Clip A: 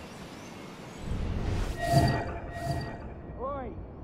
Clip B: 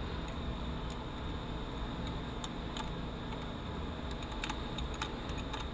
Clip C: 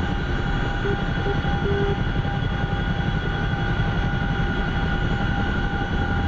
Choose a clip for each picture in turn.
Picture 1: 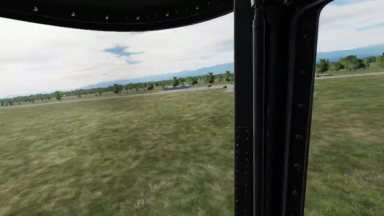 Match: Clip C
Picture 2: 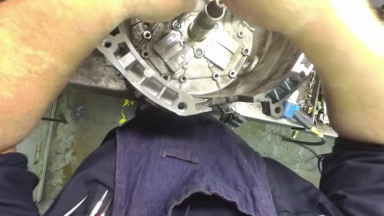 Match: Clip B